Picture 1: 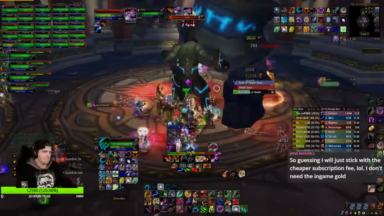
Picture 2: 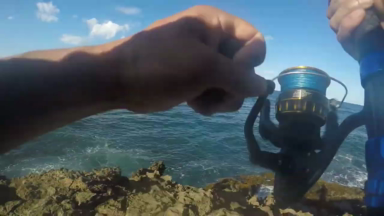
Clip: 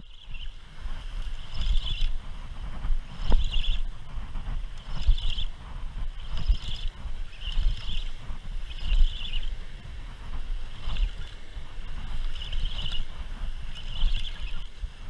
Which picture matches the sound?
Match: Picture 2